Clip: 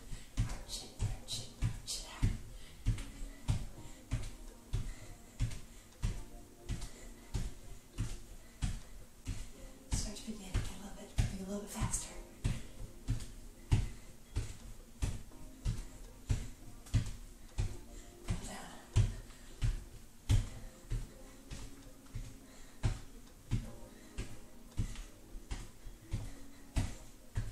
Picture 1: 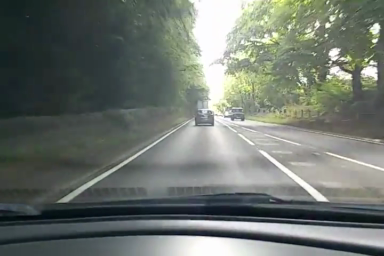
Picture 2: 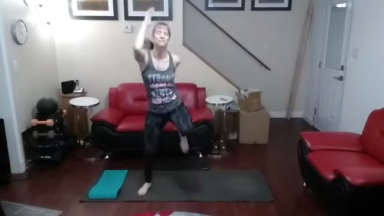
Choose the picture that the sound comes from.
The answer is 2